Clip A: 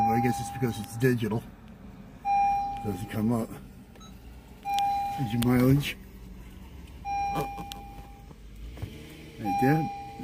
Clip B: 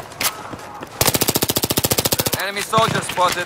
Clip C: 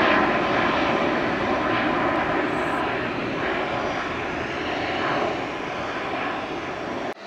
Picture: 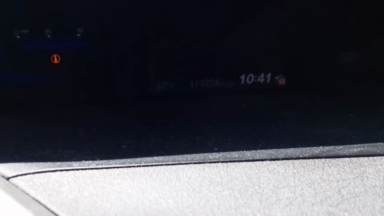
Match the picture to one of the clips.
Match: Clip A